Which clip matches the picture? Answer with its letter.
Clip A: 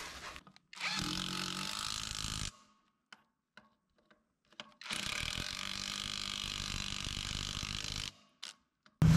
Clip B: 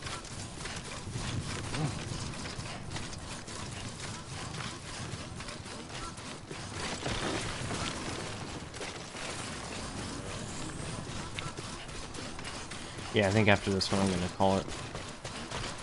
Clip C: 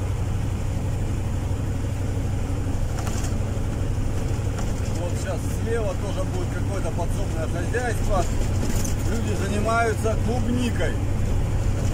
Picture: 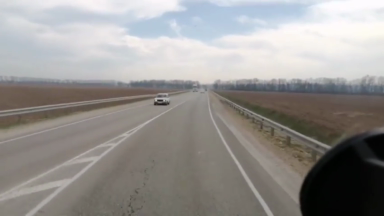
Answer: C